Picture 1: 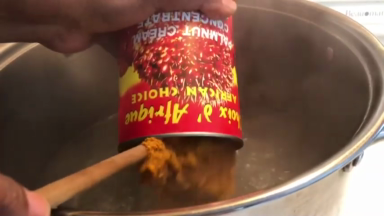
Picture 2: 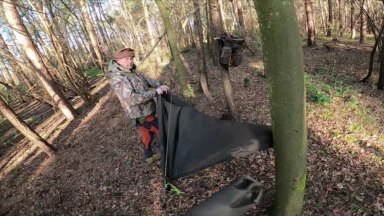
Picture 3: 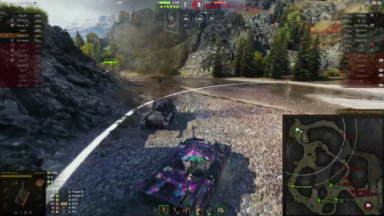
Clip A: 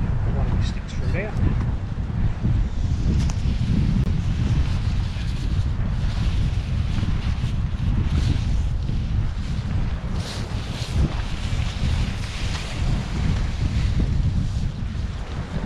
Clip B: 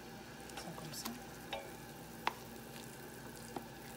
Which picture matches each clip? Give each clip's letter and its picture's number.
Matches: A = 2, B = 1